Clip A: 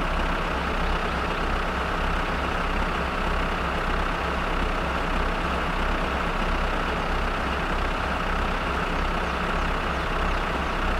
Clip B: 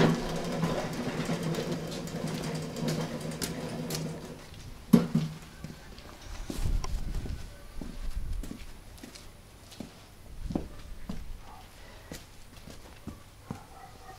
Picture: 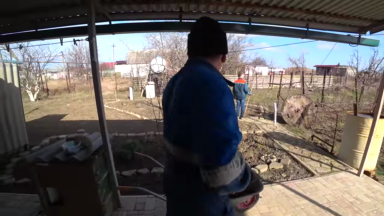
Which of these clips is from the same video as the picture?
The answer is B